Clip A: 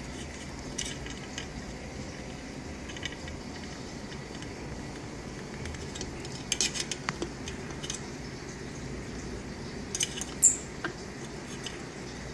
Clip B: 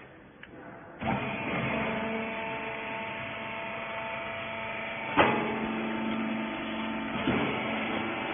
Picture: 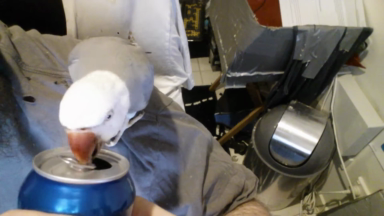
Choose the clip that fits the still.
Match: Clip A